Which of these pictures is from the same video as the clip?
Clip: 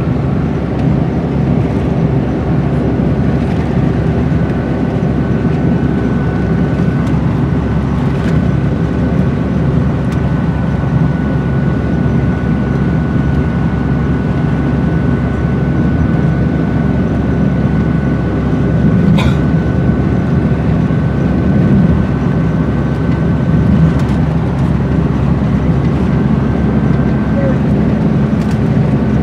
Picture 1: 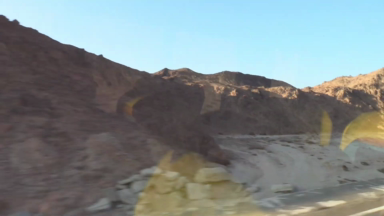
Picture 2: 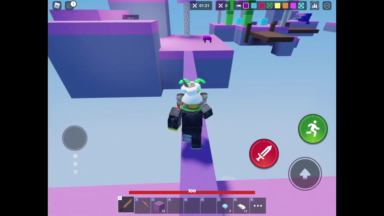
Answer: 1